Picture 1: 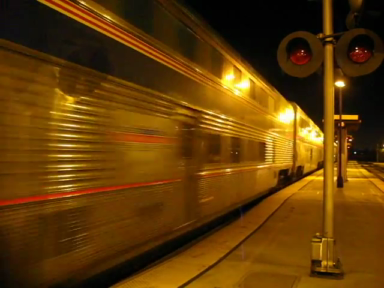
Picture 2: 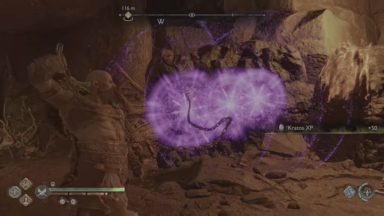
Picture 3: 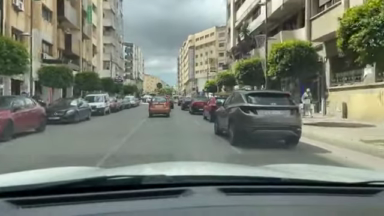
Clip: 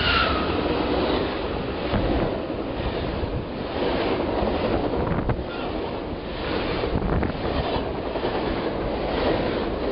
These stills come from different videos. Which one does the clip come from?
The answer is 1